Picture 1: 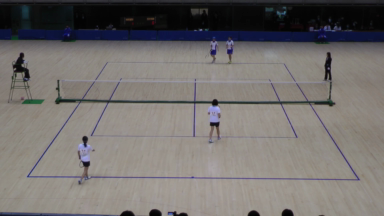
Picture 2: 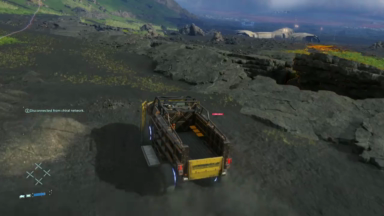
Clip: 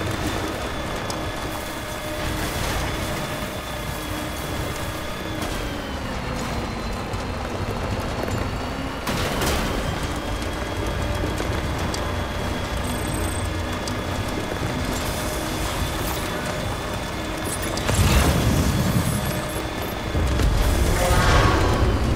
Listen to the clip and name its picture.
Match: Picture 2